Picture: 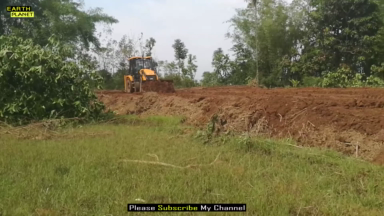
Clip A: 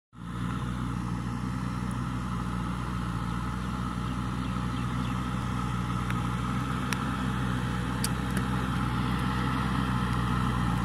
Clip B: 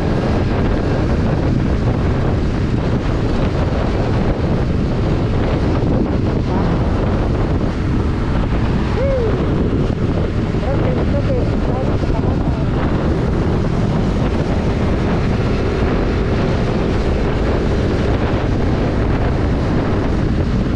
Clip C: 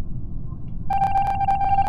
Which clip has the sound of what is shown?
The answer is A